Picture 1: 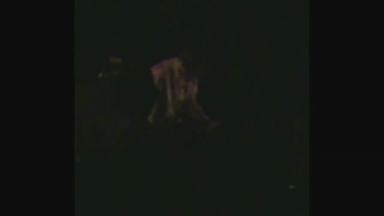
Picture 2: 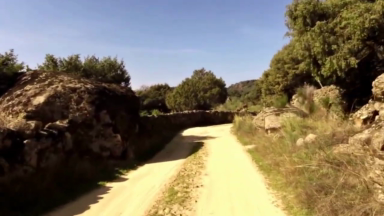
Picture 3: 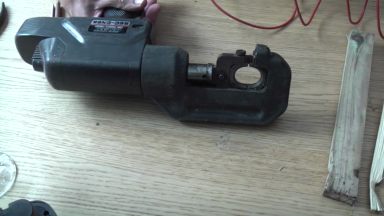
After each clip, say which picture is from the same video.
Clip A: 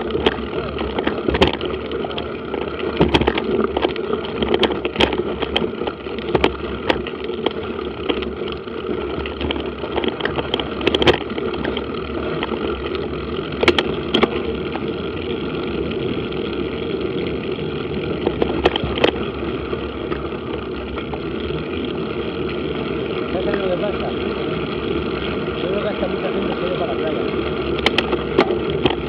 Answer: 2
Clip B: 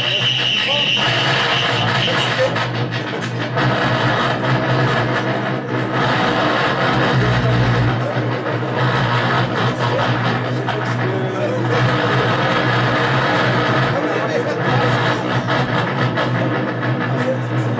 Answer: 1